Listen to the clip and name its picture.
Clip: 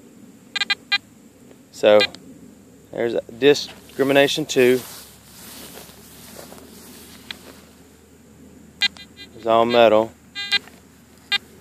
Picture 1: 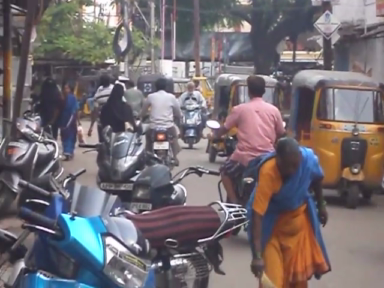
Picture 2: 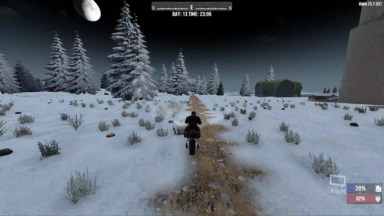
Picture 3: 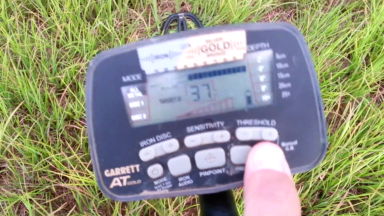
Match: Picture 3